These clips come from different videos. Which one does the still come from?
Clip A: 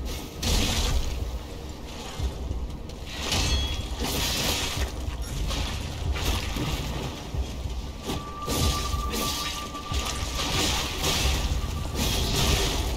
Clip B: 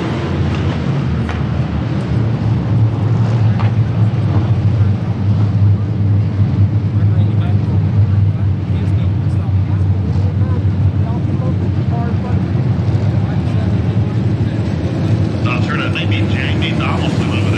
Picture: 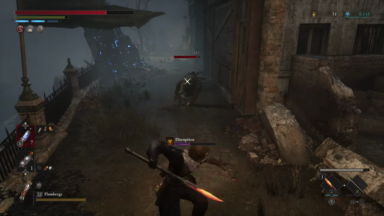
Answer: A